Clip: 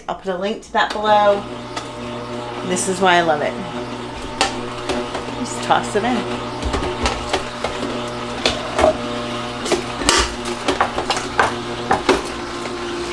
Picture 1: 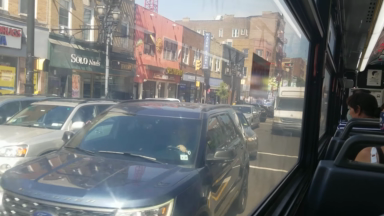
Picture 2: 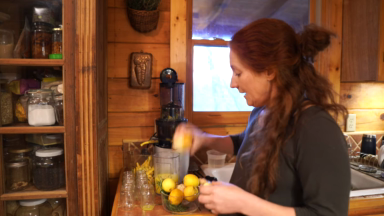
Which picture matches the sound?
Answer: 2